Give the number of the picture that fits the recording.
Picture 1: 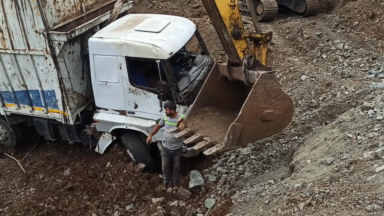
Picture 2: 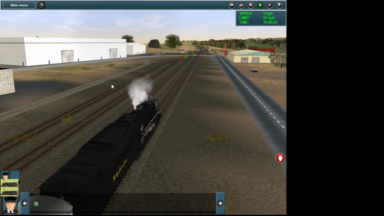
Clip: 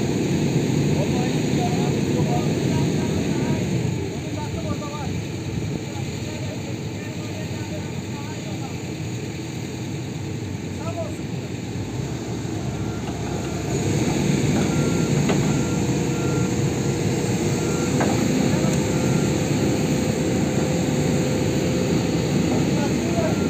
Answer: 1